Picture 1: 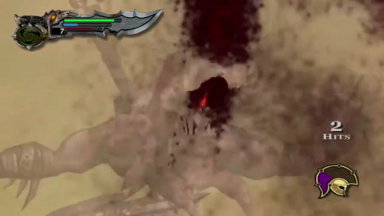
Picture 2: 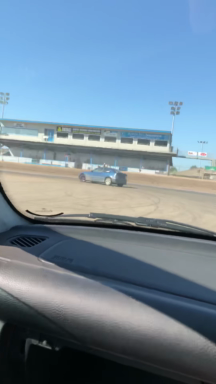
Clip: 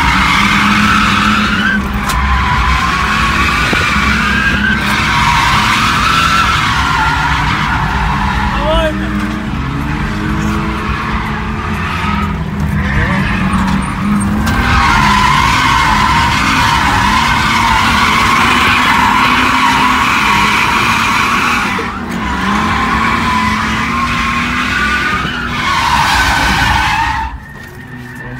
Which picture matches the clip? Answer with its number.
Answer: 2